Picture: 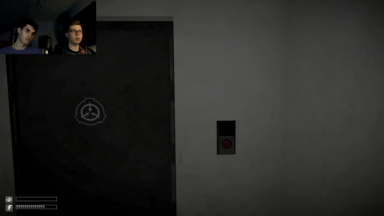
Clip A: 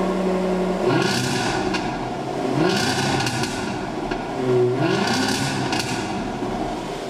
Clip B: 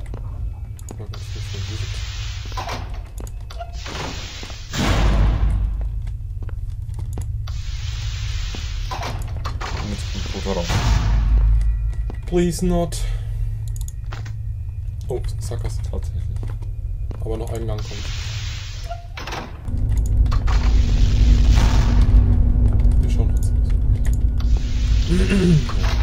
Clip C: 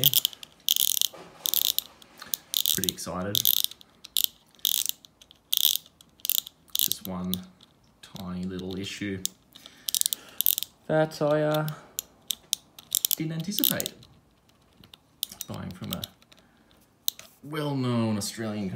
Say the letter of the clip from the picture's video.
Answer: B